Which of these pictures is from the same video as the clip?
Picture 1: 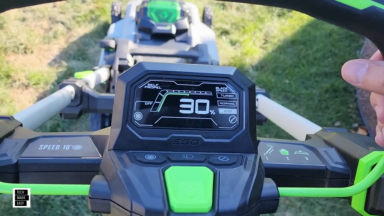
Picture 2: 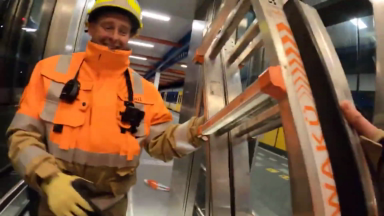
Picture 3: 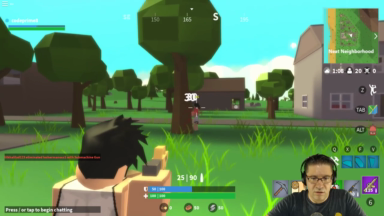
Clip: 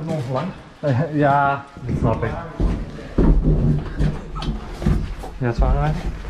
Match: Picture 2